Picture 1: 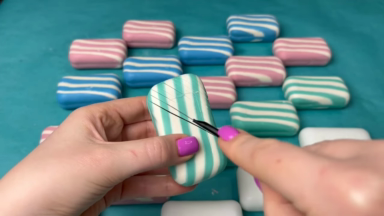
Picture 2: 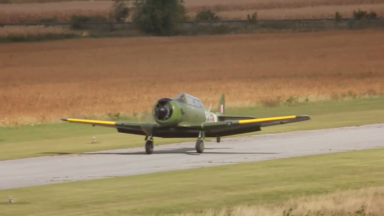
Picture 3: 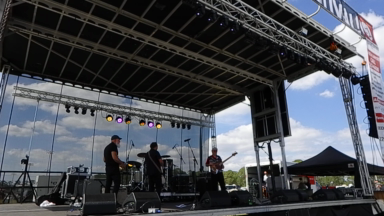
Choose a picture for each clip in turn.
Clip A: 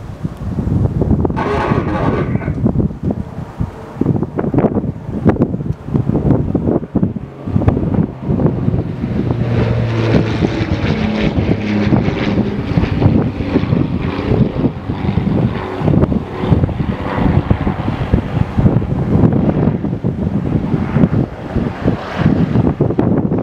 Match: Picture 2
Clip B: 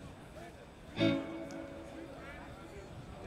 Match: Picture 3